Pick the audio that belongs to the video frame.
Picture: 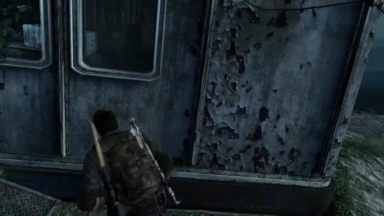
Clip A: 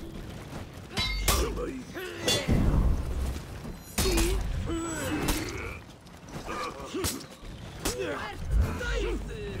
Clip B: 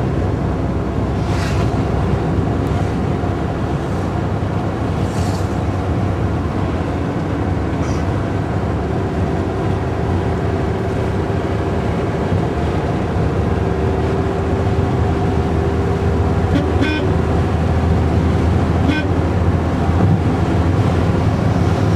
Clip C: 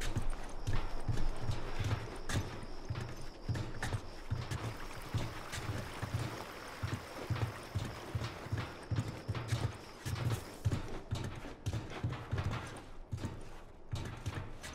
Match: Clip C